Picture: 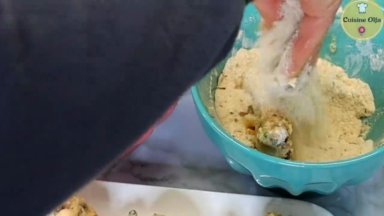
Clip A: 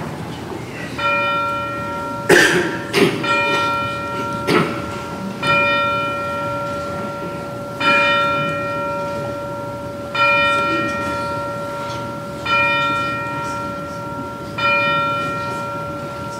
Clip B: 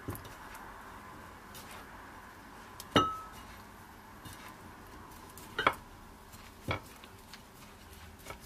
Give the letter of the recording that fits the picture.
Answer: B